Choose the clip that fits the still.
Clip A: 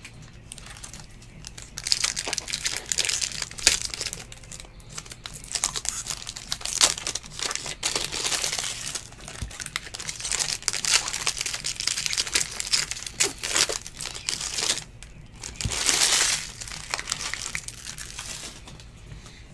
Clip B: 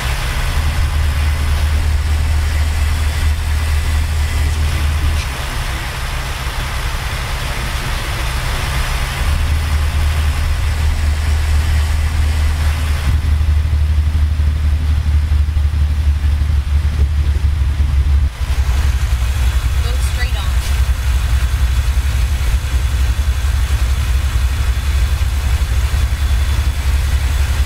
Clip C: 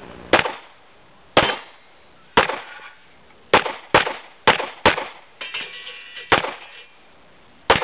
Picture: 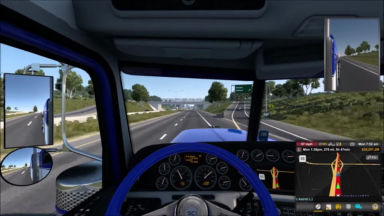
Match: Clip B